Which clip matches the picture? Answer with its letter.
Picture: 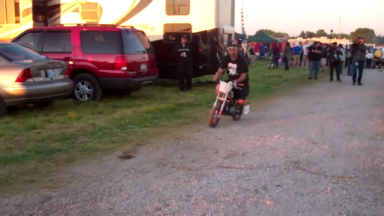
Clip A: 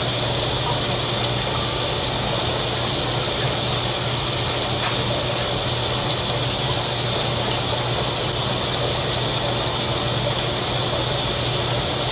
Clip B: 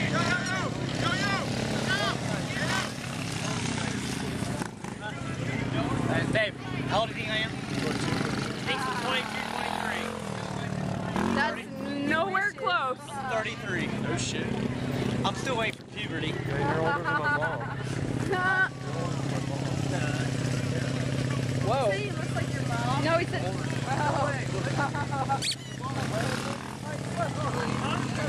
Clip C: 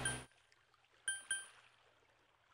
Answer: B